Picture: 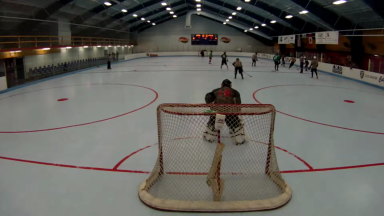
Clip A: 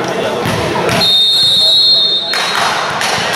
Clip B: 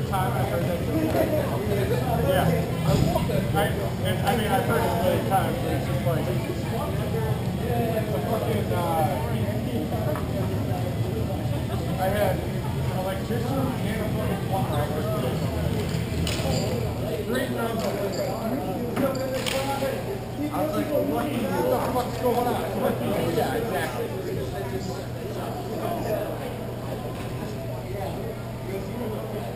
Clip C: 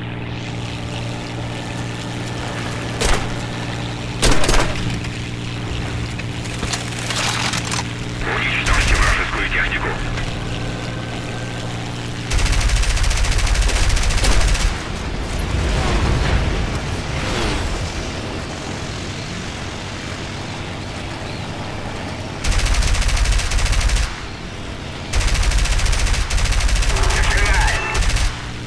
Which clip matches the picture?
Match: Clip B